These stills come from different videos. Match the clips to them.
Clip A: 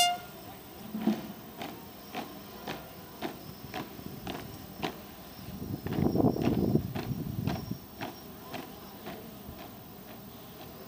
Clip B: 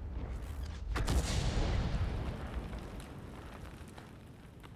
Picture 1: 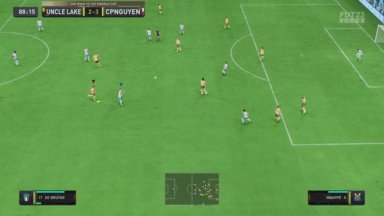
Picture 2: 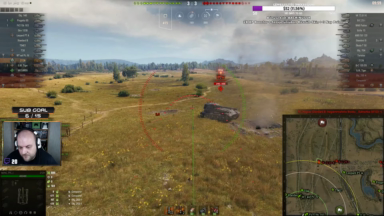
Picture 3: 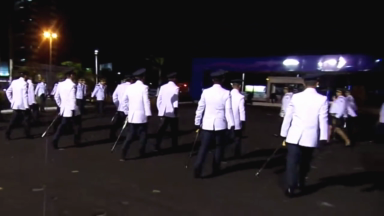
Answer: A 3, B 2